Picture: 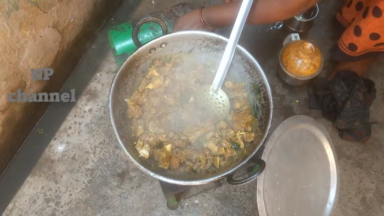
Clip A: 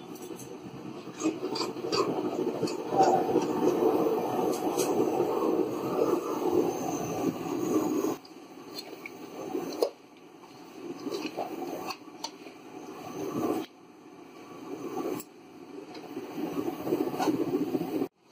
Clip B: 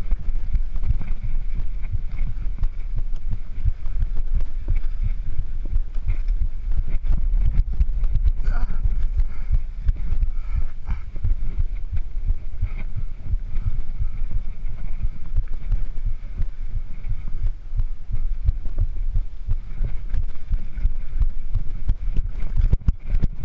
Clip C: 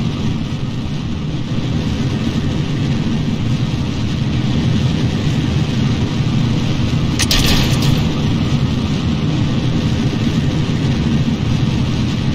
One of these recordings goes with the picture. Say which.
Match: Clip A